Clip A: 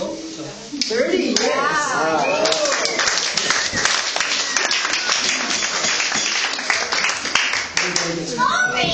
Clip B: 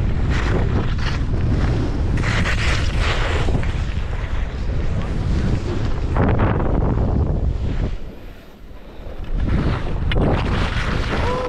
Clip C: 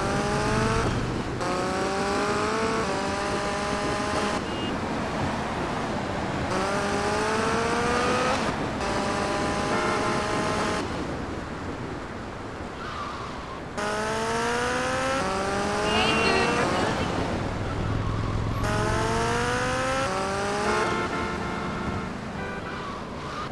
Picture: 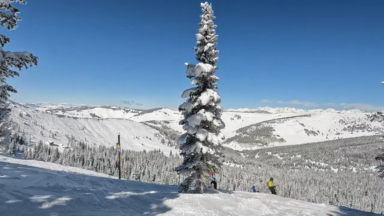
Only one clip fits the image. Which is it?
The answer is B